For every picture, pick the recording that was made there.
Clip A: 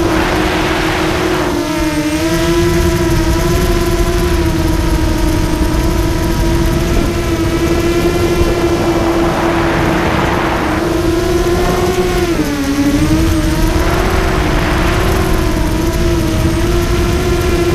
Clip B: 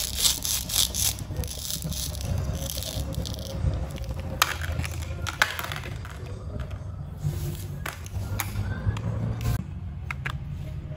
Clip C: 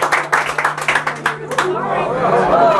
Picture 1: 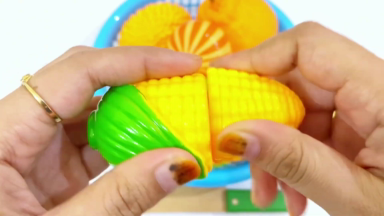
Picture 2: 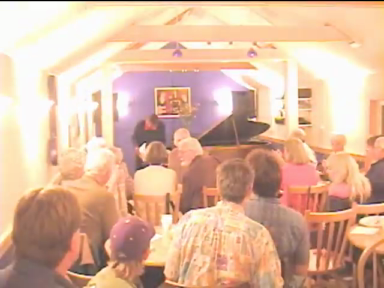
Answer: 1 B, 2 C